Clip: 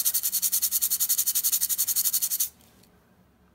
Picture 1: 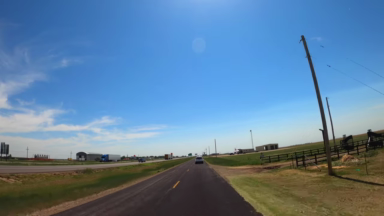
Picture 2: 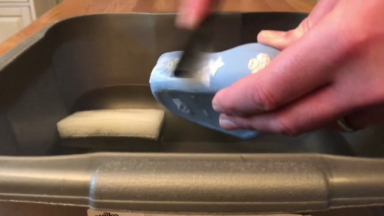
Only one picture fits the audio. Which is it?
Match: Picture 2